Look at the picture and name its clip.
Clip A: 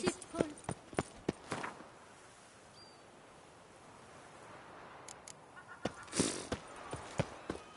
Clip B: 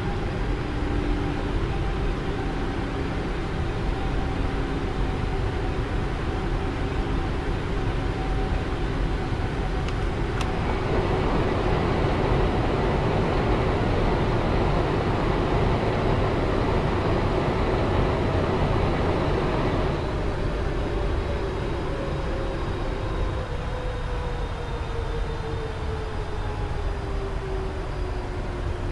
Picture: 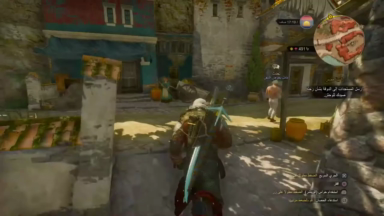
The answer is A